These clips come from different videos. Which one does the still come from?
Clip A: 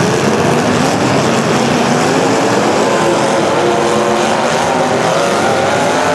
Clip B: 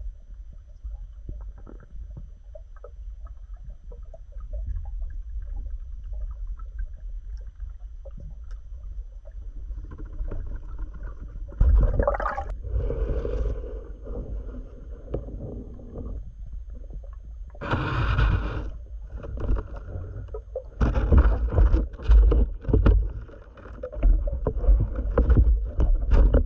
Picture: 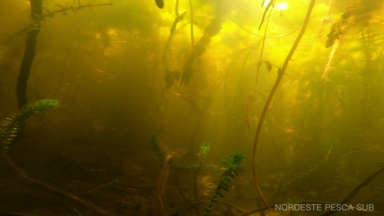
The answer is B